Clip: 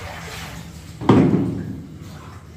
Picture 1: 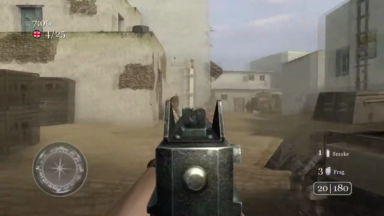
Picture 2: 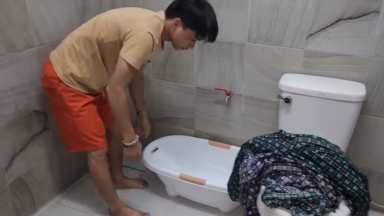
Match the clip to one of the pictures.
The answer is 2